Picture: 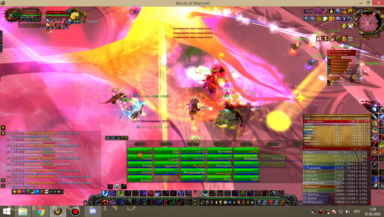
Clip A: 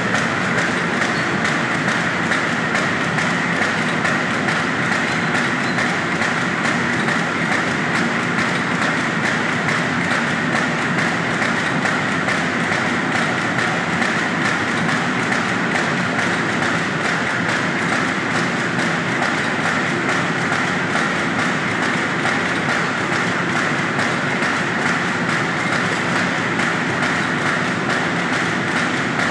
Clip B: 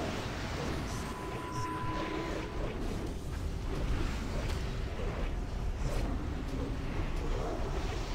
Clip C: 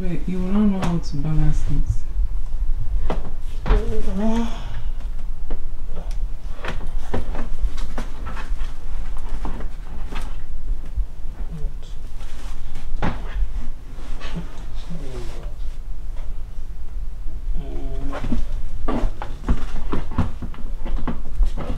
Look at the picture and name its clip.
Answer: B